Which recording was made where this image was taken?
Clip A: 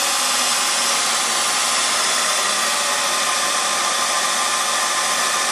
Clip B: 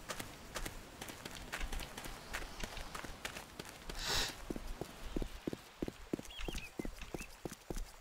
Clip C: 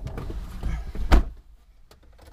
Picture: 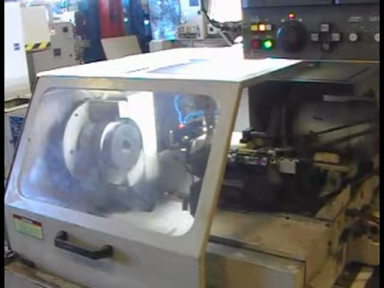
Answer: A